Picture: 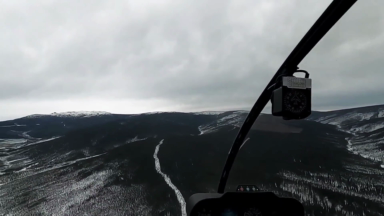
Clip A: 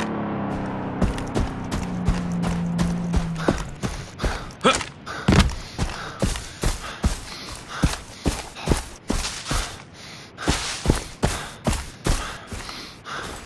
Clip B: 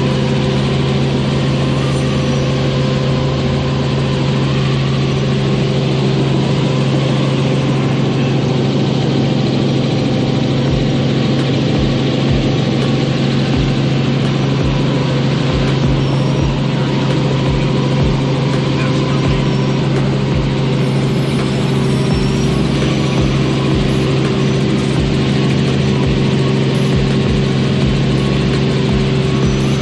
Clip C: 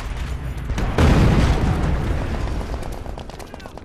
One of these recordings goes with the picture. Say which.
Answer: B